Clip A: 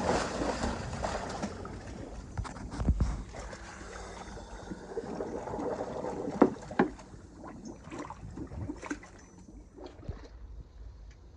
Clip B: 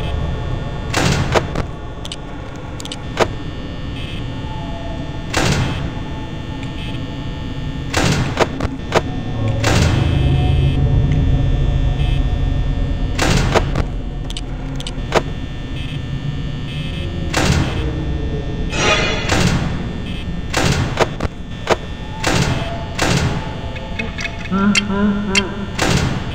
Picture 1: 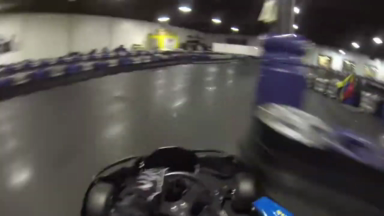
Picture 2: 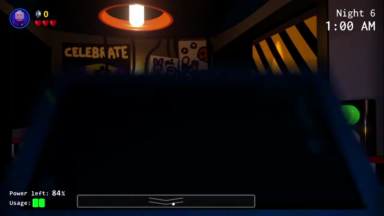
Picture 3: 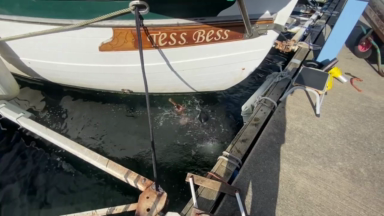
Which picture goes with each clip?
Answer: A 3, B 2